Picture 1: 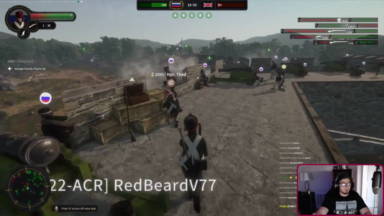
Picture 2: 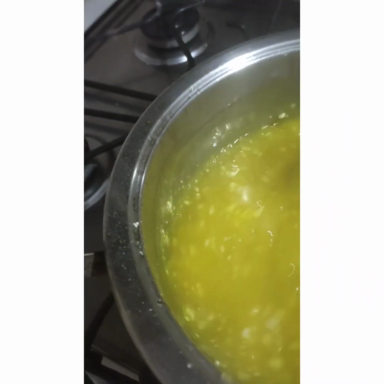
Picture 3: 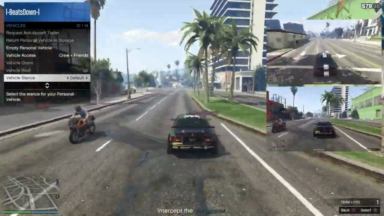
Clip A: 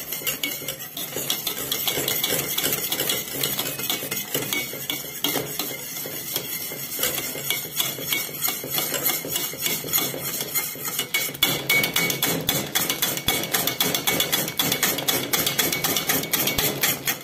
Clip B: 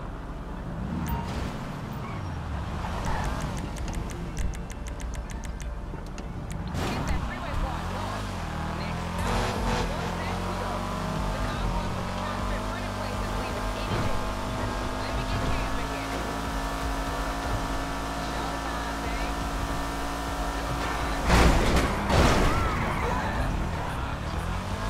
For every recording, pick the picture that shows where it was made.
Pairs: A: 2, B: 3